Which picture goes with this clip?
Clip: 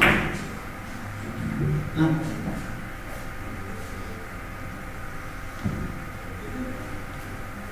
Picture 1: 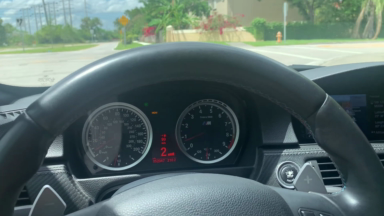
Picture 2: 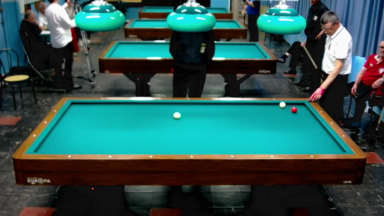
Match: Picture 2